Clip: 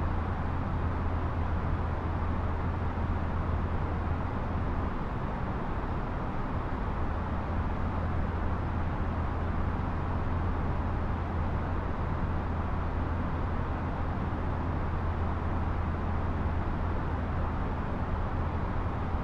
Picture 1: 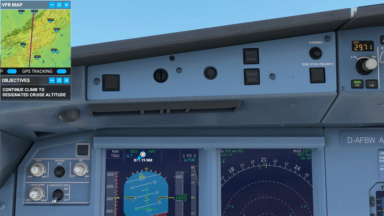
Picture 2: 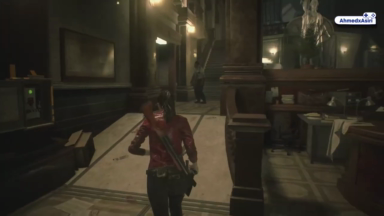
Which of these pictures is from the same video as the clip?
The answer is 1